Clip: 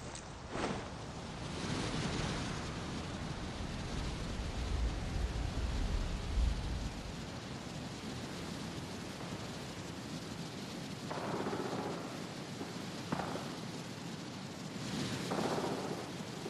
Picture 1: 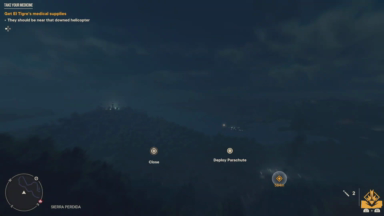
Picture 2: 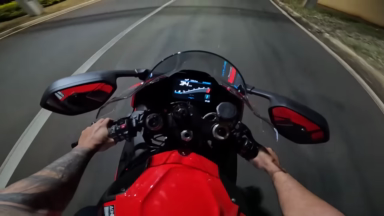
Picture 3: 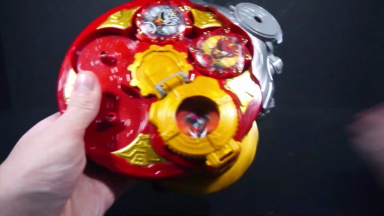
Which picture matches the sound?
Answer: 1